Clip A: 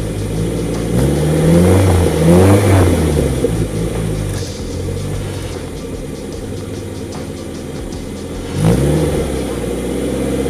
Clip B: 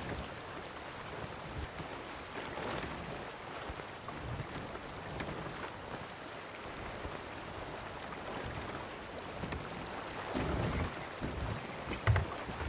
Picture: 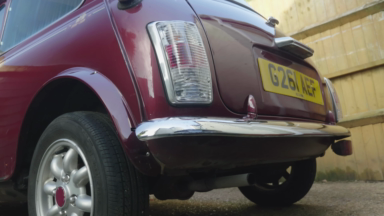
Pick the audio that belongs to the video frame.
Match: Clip A